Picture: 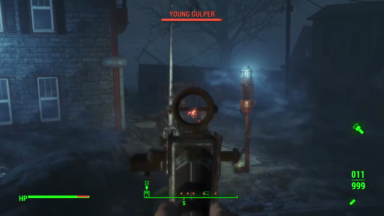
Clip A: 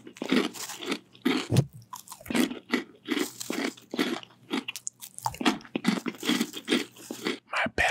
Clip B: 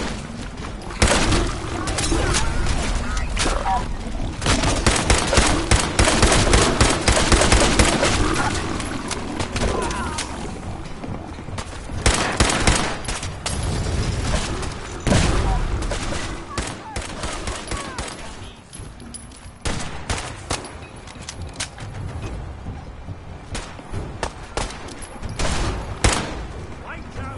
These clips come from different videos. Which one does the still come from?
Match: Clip B